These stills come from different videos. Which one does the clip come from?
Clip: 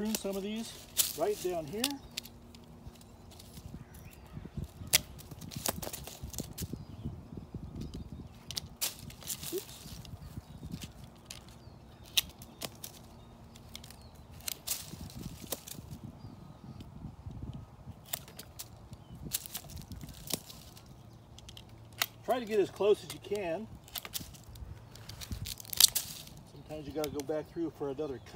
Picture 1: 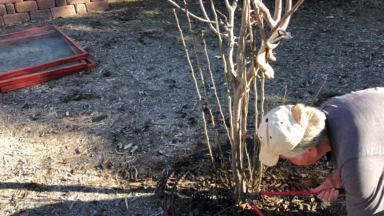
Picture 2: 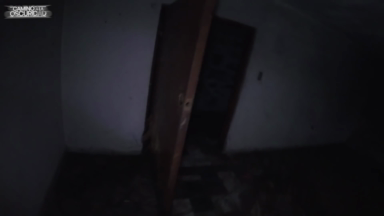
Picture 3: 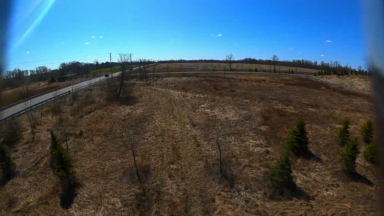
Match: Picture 1